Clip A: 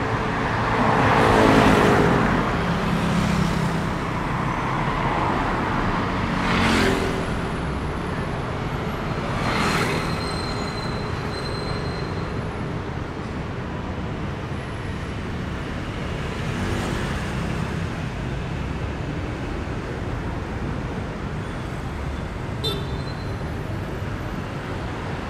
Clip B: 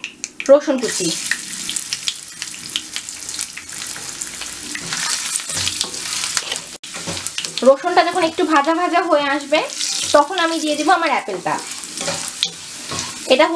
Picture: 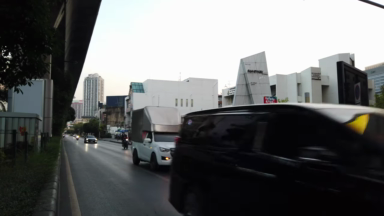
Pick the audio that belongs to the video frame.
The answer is A